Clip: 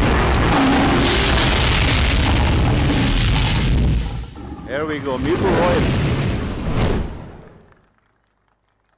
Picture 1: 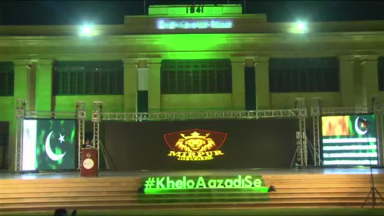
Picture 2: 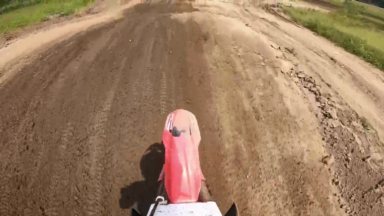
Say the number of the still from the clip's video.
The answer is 1